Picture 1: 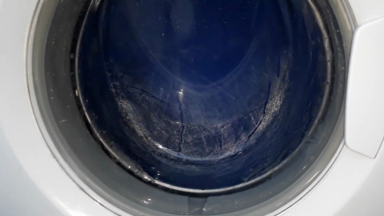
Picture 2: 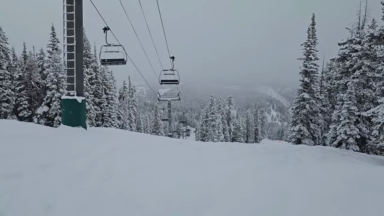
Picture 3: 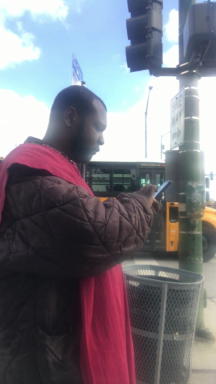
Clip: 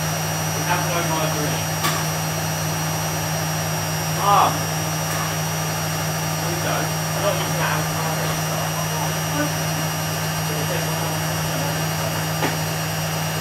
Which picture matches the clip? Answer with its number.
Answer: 1